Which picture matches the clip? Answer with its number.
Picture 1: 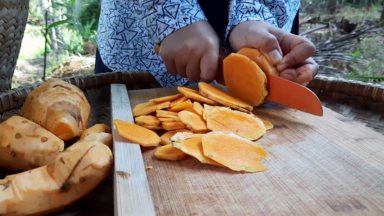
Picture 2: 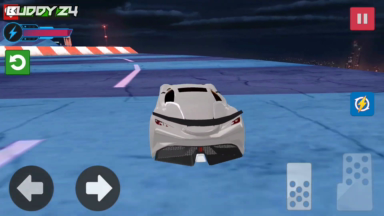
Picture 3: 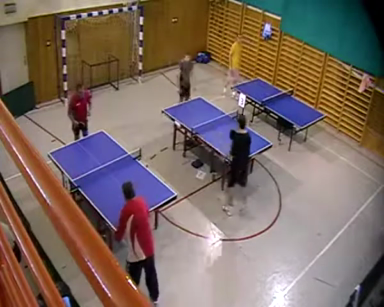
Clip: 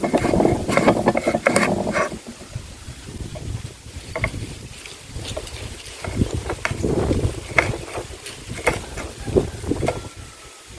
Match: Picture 1